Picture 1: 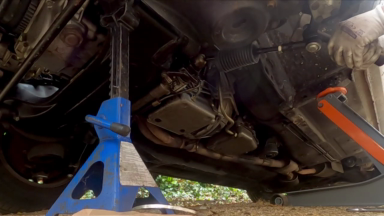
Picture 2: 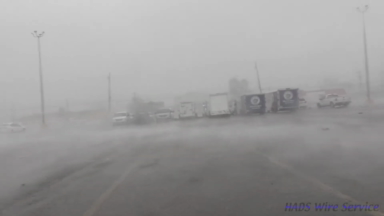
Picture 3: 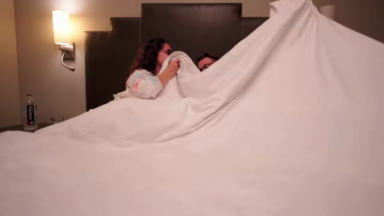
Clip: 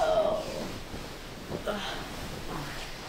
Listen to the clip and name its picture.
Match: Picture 3